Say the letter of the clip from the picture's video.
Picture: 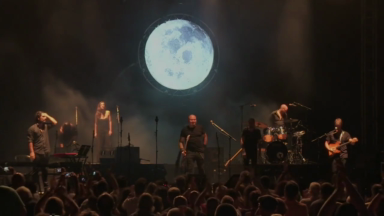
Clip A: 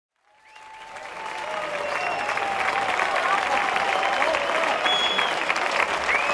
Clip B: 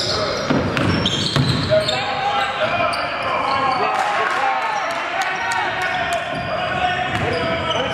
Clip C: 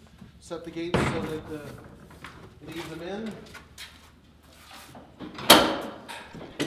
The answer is A